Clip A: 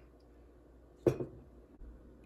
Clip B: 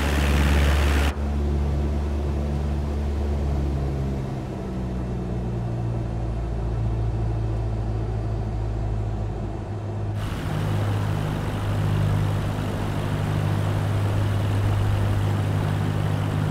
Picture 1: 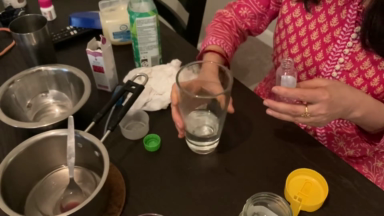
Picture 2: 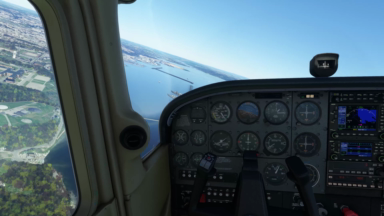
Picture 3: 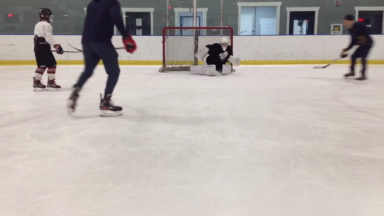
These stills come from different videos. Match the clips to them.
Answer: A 1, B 2